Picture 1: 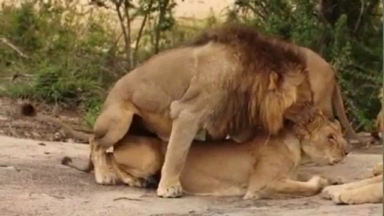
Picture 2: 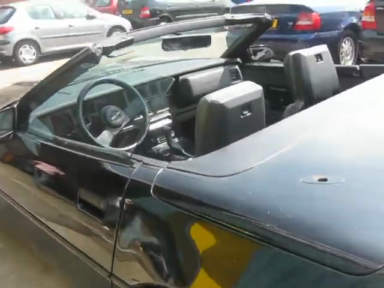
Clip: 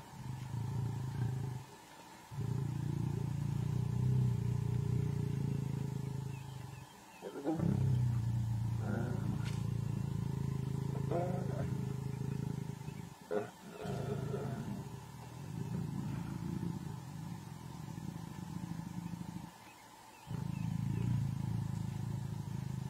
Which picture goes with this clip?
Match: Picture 1